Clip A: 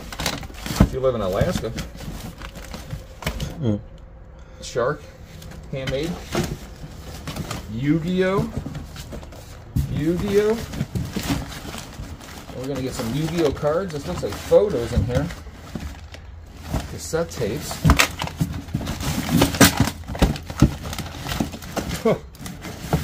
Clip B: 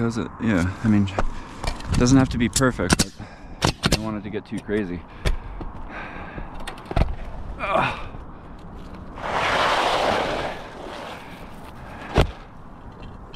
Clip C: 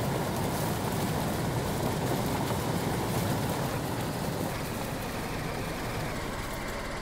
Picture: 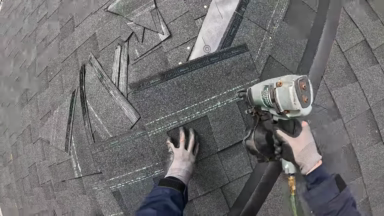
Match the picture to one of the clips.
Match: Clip B